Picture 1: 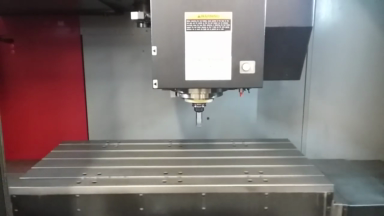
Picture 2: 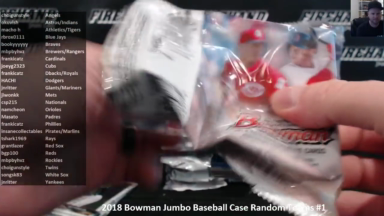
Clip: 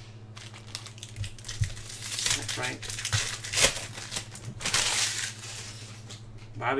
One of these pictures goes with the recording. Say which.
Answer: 2